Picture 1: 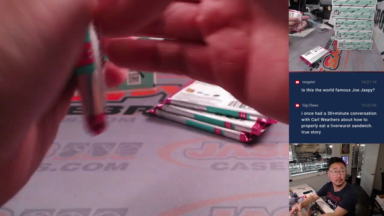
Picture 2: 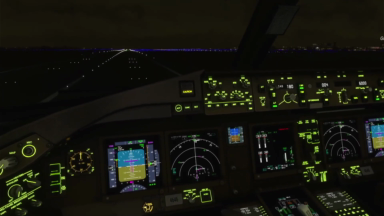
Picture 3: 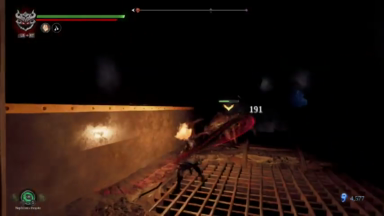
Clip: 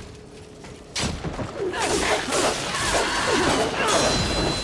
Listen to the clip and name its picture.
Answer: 3